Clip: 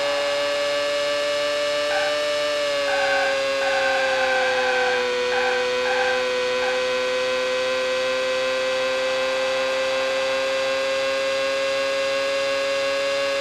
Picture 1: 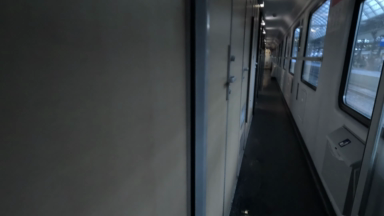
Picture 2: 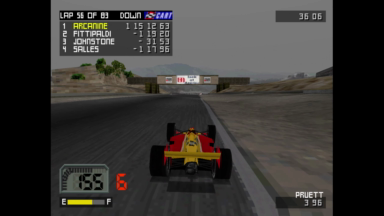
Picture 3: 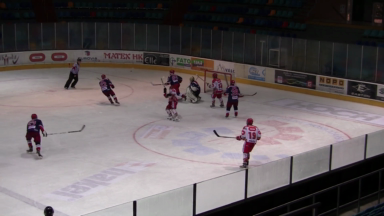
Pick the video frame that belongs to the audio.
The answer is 2